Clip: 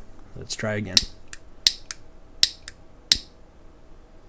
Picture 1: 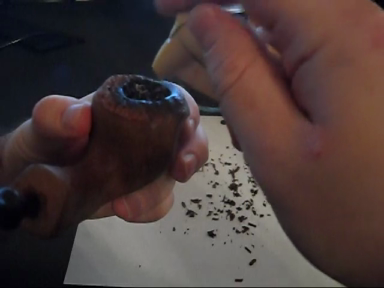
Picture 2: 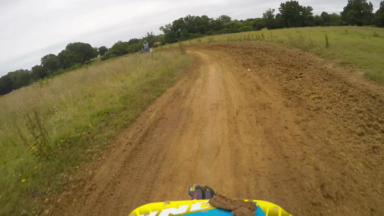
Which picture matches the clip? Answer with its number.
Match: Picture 1